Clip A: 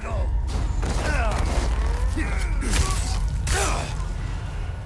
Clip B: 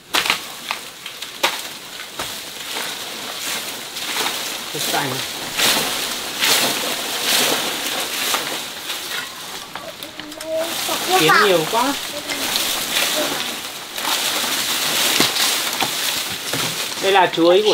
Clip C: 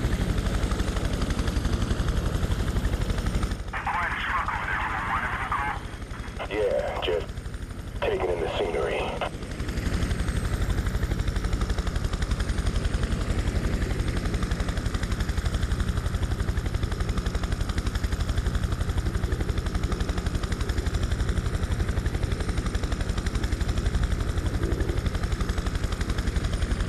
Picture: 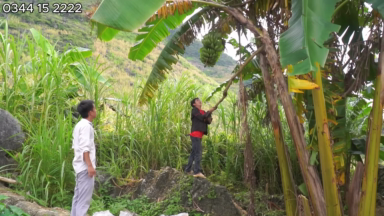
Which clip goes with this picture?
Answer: B